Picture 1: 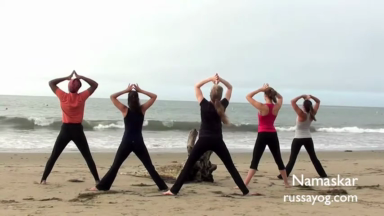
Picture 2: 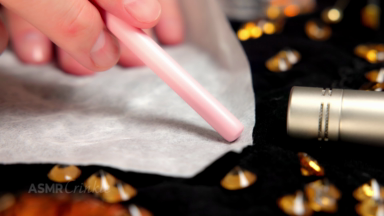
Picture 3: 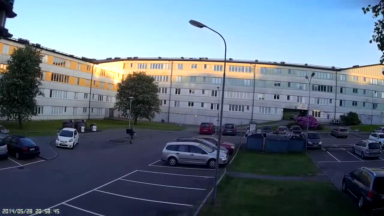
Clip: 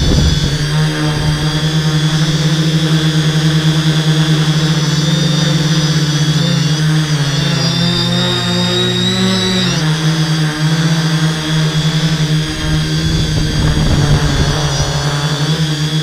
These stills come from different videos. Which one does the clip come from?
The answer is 3